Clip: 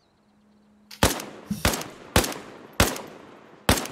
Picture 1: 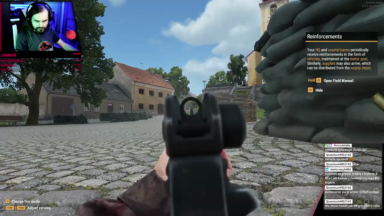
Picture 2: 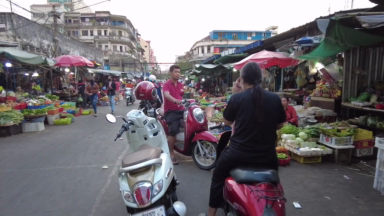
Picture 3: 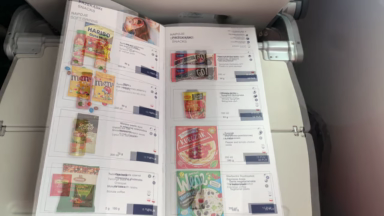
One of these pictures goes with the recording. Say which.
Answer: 1